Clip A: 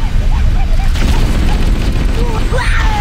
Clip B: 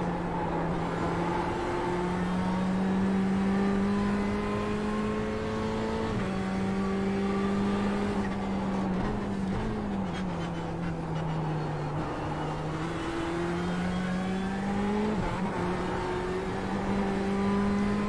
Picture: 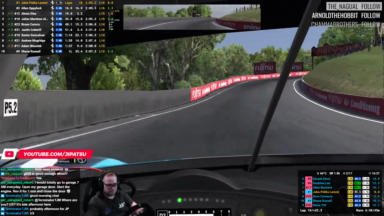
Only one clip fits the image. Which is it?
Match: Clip B